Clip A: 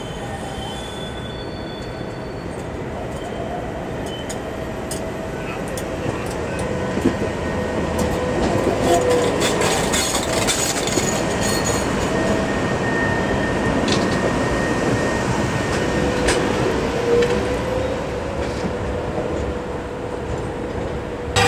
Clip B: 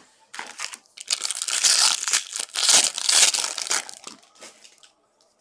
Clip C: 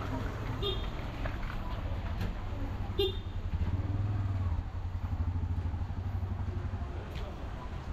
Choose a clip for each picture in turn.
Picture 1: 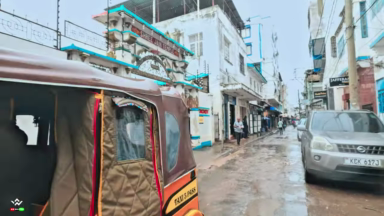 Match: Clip C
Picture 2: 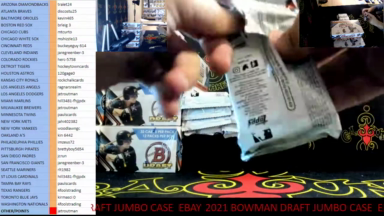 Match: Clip B